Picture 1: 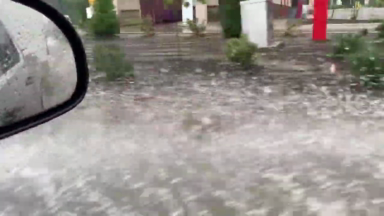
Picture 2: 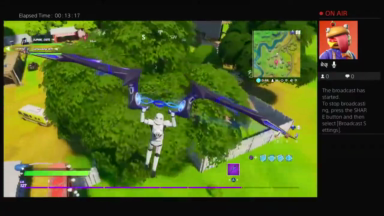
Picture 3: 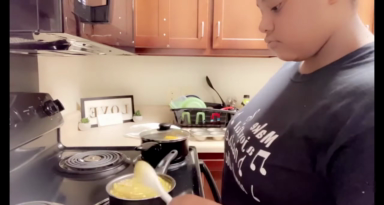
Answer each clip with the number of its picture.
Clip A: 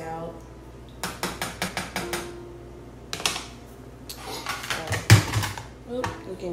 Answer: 3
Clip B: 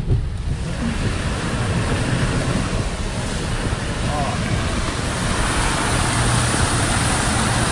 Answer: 1